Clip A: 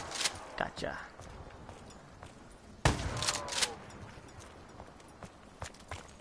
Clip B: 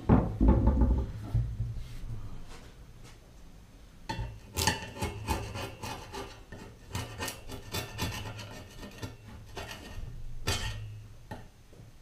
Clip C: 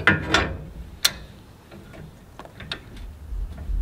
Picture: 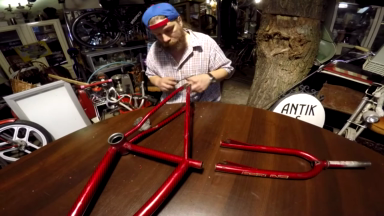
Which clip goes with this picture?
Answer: B